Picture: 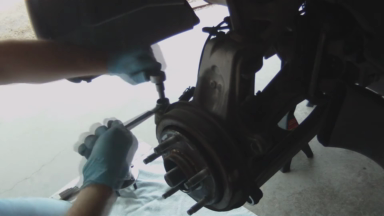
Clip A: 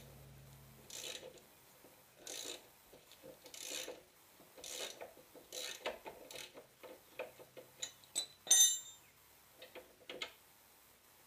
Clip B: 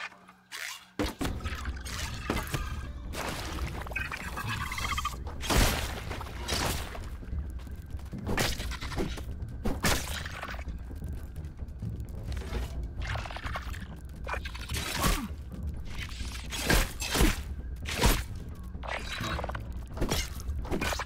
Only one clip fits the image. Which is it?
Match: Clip A